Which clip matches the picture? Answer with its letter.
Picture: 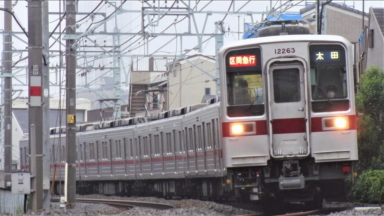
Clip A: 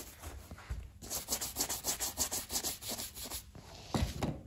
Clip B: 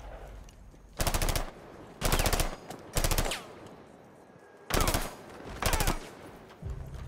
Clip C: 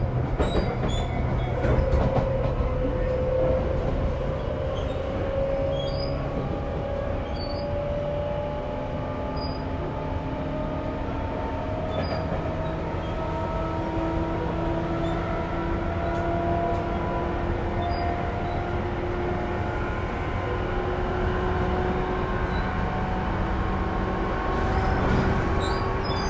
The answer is C